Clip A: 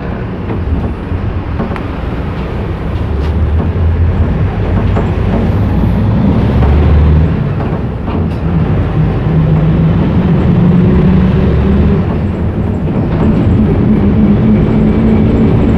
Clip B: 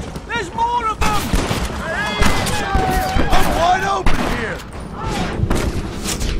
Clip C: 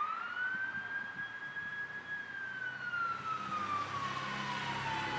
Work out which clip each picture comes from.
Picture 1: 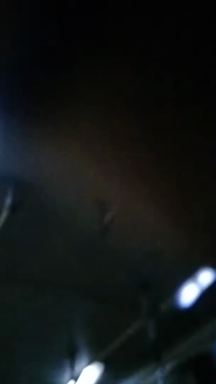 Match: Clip A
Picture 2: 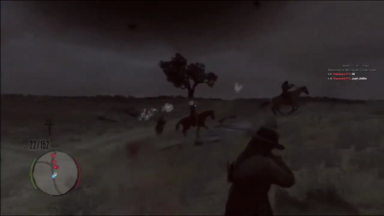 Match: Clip B